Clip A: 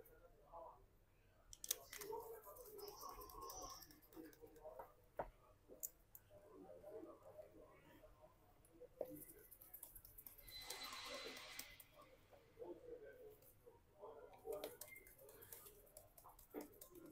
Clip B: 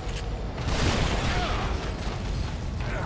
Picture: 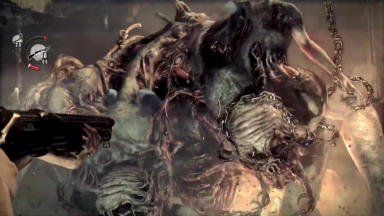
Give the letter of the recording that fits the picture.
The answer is B